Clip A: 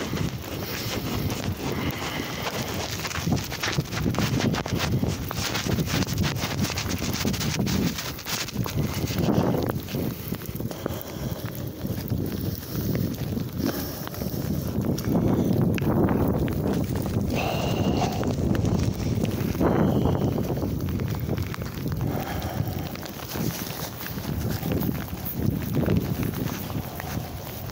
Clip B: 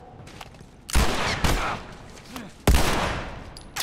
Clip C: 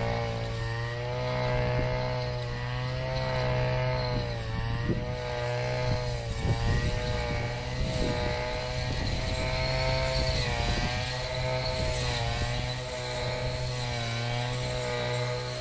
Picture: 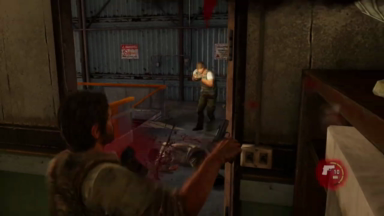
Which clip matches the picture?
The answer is B